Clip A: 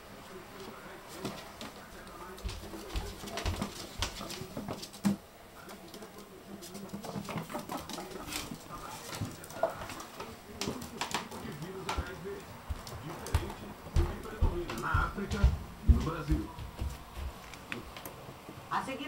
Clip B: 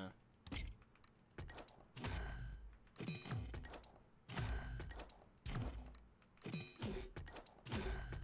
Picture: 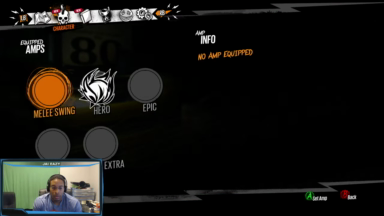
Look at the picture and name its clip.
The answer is B